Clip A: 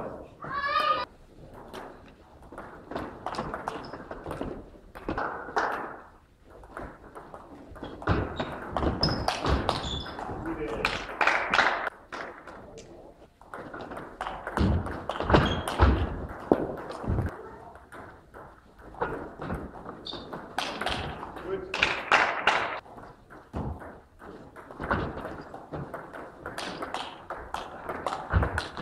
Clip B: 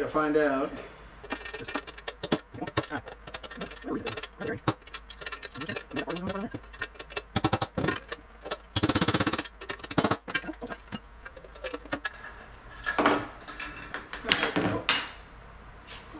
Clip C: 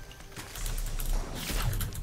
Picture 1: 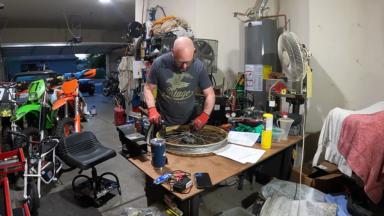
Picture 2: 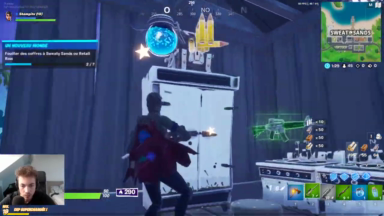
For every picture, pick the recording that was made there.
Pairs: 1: B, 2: C